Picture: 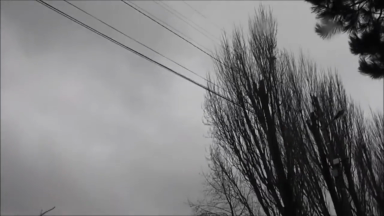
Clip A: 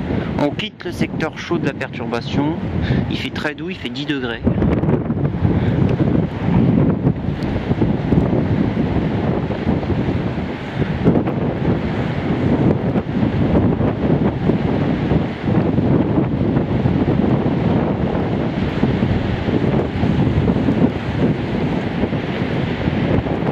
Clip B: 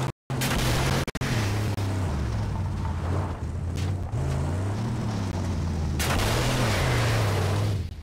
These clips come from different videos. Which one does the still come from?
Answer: A